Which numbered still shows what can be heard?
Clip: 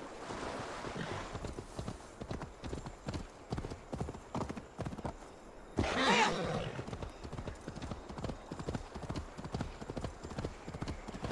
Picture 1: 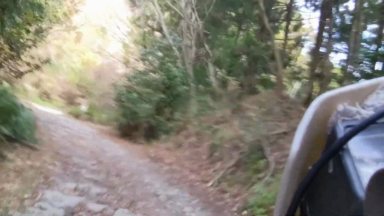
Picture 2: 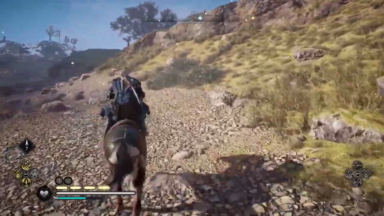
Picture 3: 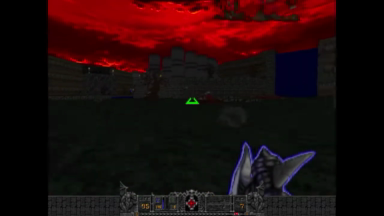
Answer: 2